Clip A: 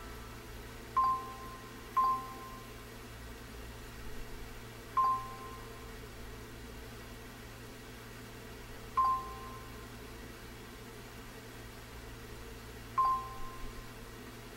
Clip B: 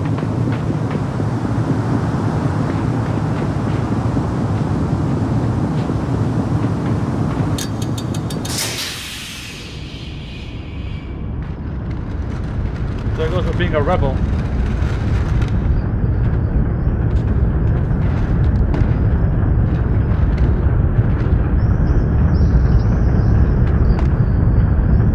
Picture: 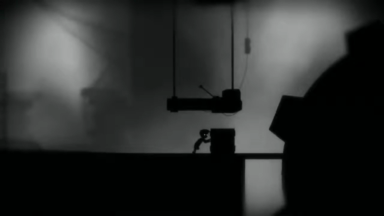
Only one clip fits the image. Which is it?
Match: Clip B